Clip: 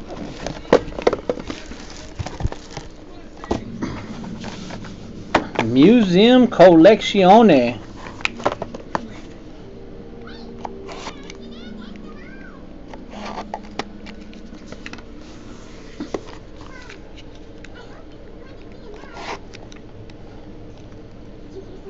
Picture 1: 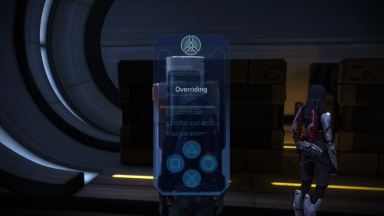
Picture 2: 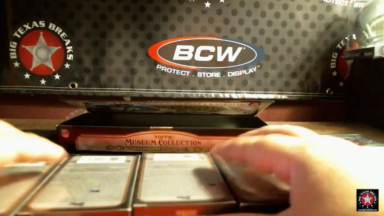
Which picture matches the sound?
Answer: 2